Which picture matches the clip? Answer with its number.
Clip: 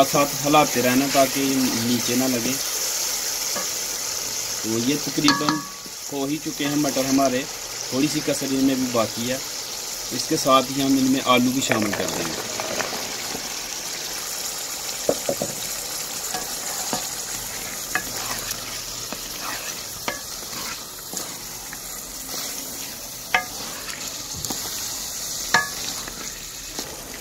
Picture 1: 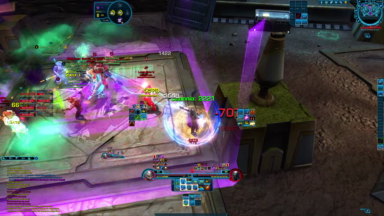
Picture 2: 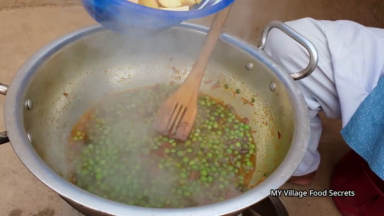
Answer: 2